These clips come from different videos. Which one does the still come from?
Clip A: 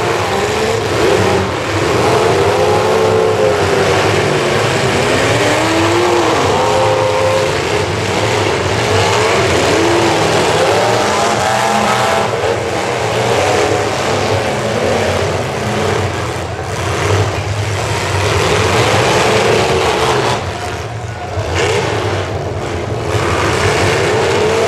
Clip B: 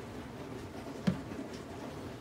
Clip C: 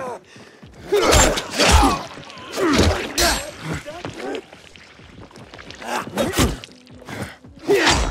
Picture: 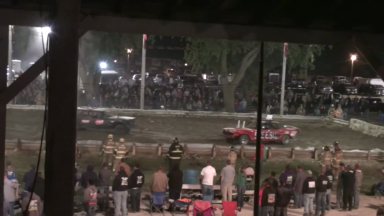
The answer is A